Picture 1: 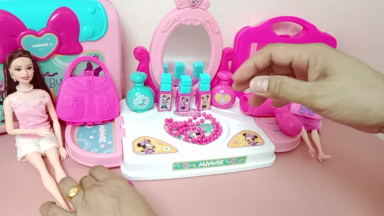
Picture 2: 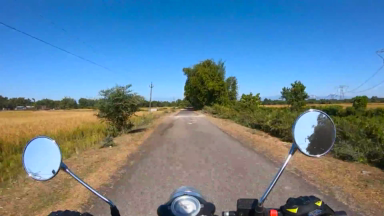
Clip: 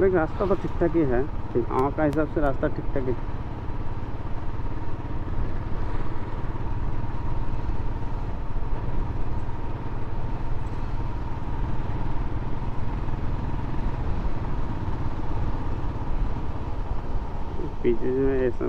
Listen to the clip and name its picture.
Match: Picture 2